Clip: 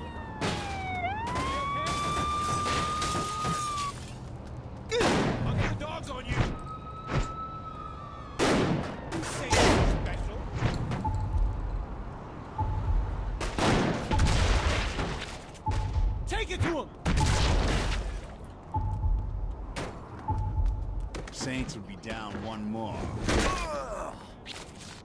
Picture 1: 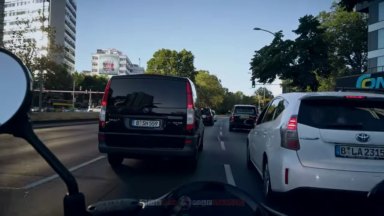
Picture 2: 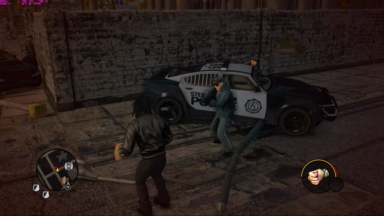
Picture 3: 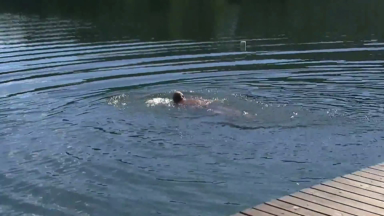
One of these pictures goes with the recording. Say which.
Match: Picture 2